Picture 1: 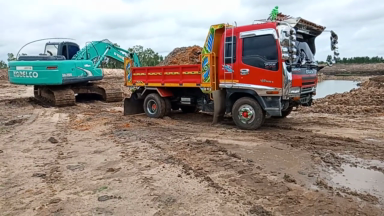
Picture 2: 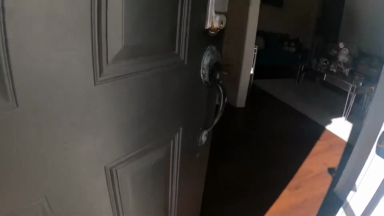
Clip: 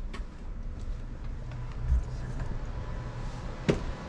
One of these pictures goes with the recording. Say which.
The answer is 2